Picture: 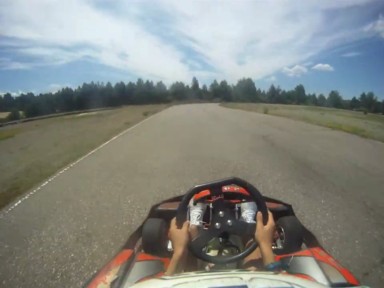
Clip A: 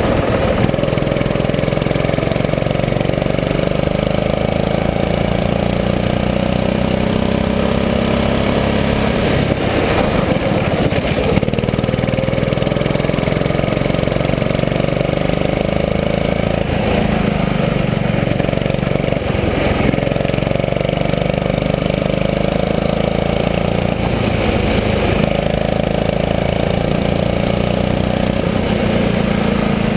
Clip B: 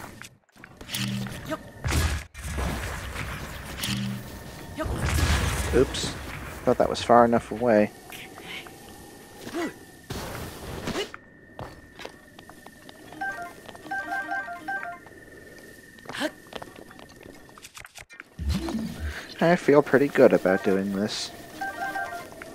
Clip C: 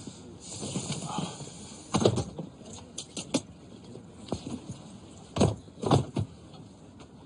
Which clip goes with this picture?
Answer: A